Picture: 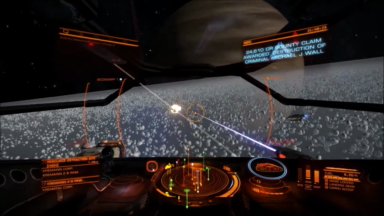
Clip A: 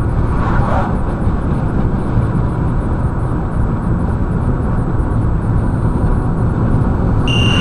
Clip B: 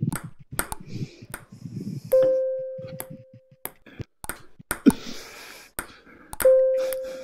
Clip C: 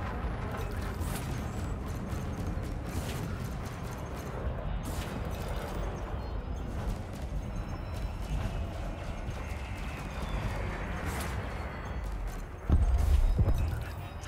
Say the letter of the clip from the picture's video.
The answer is C